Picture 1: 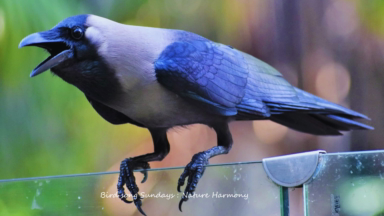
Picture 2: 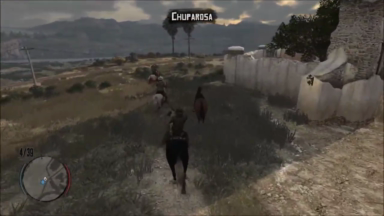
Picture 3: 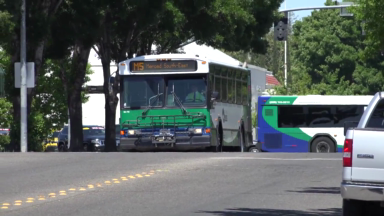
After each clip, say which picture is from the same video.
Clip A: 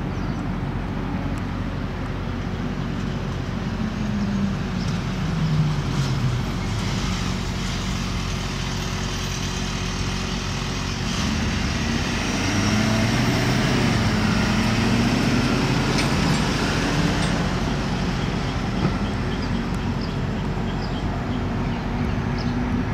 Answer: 3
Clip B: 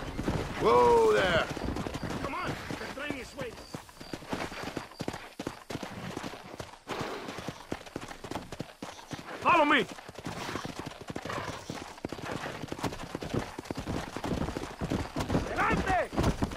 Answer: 2